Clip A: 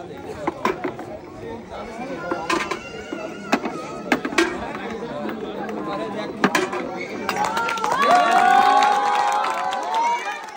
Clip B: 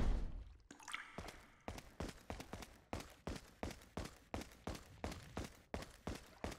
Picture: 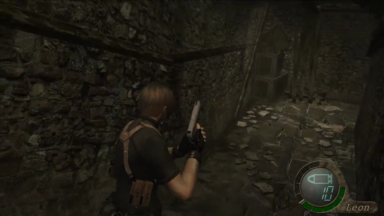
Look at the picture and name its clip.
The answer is B